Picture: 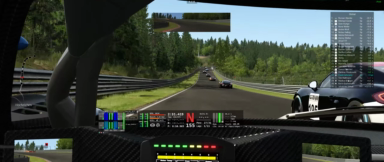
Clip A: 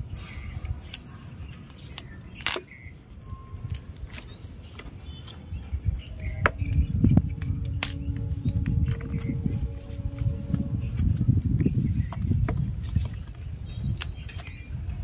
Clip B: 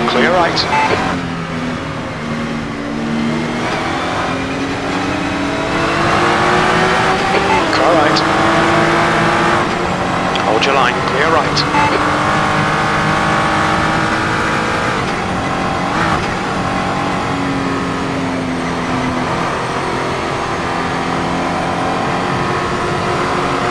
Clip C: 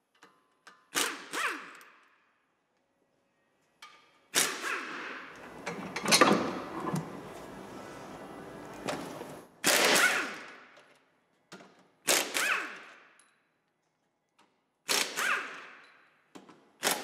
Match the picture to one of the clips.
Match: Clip B